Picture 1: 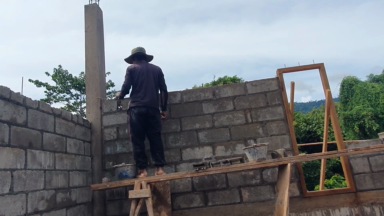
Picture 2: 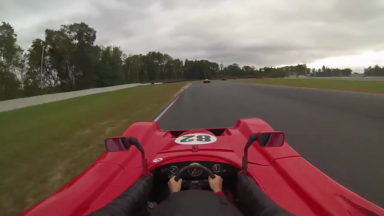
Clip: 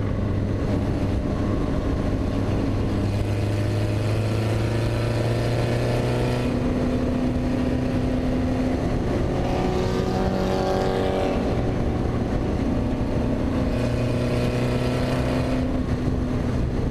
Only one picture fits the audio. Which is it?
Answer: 2